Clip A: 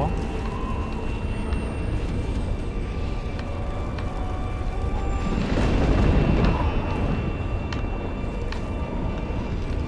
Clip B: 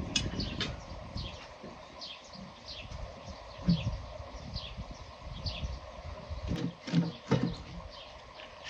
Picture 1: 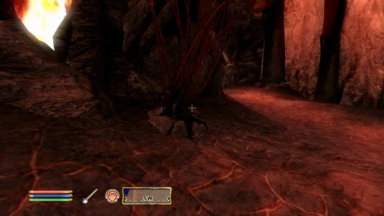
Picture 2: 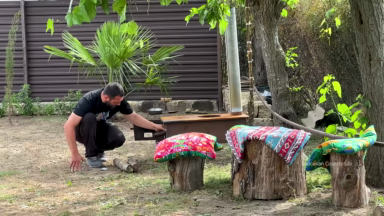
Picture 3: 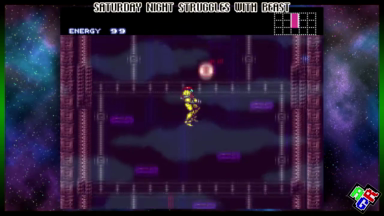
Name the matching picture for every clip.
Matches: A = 1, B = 2